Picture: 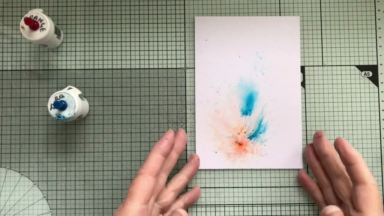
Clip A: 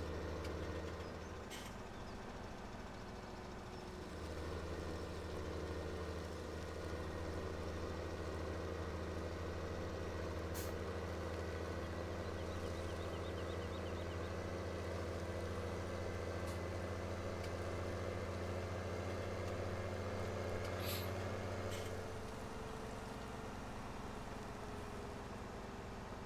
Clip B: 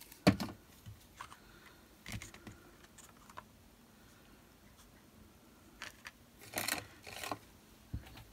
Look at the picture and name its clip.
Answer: B